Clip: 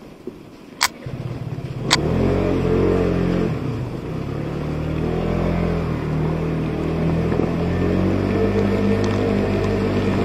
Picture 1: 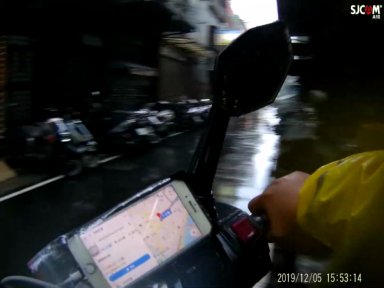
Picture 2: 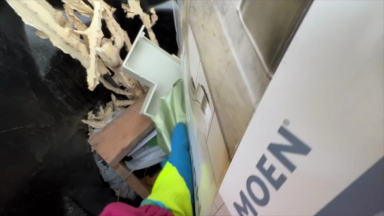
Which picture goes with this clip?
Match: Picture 1